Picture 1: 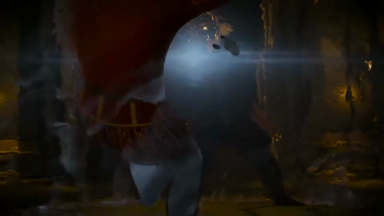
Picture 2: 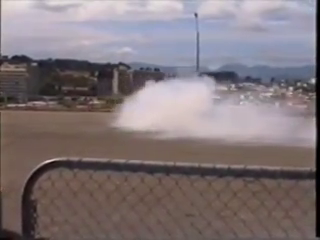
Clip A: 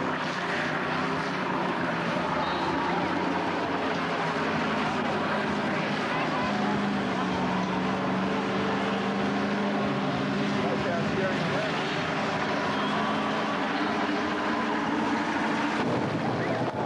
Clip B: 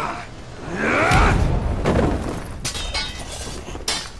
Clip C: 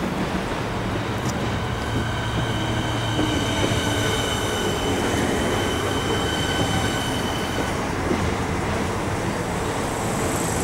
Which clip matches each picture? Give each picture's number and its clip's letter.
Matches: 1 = B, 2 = A